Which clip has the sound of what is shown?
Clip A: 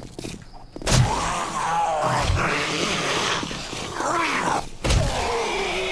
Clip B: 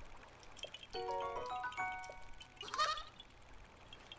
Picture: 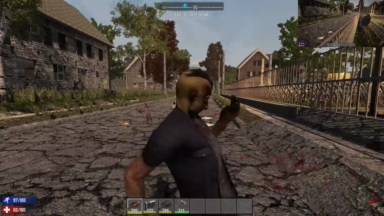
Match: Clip A